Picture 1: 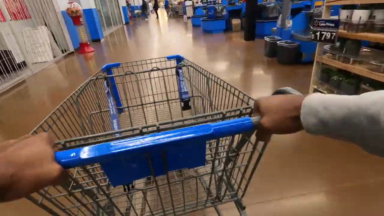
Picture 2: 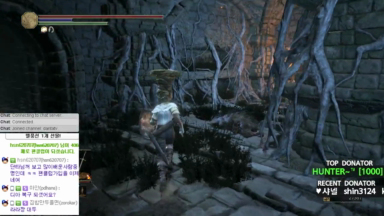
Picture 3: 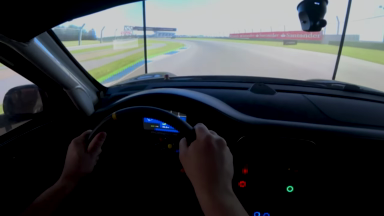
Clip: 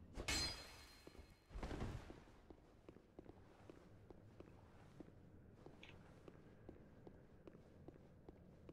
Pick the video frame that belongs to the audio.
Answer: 2